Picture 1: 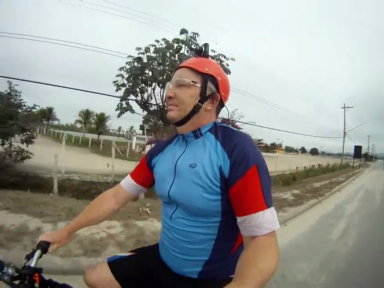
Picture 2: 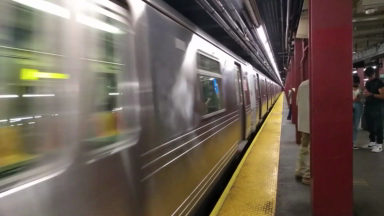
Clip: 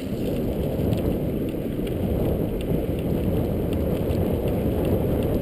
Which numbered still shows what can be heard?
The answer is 1